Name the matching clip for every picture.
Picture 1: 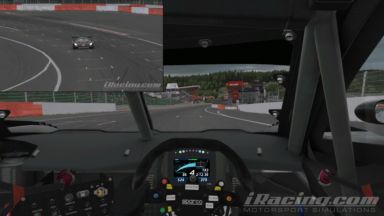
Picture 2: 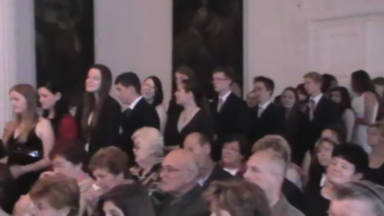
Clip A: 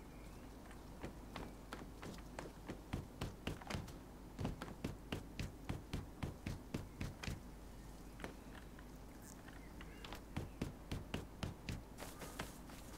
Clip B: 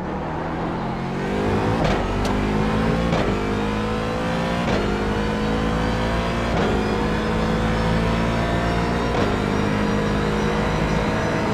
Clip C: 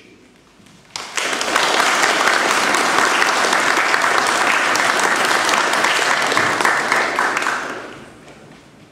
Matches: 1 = B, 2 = C